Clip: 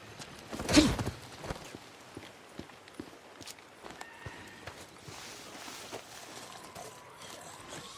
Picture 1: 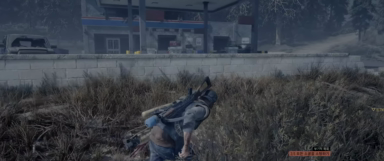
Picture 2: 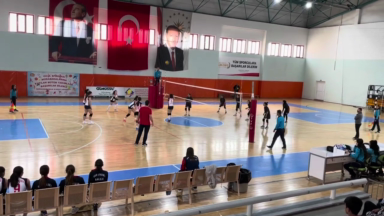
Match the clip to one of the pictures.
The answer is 1